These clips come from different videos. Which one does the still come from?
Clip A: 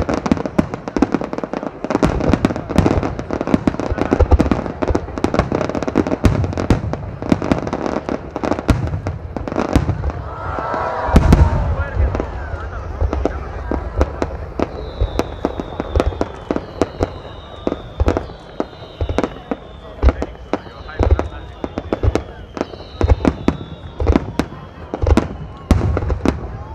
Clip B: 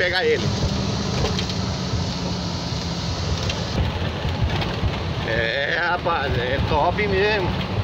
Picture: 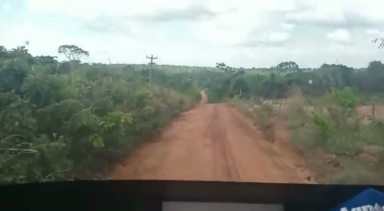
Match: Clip B